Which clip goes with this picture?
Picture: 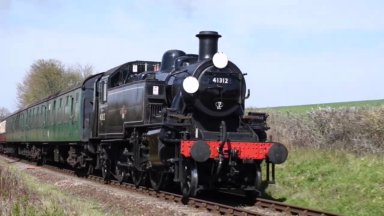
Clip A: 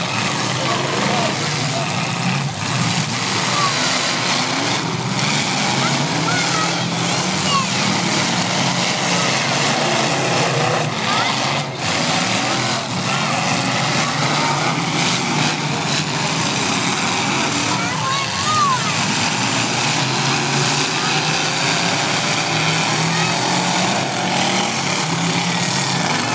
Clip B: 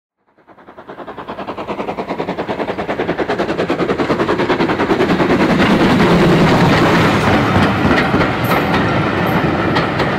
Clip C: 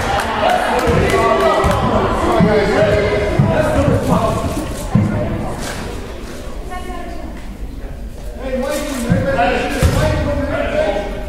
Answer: B